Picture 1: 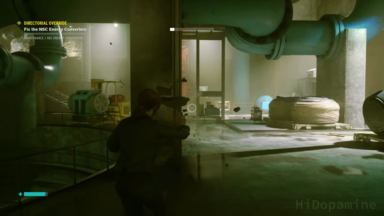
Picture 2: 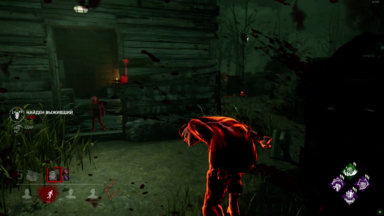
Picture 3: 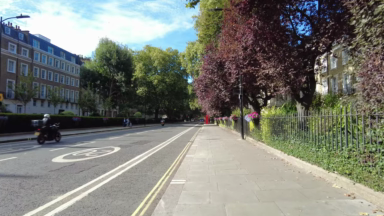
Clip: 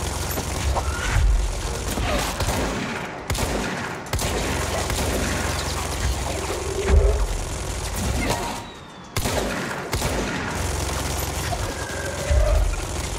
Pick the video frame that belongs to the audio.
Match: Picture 1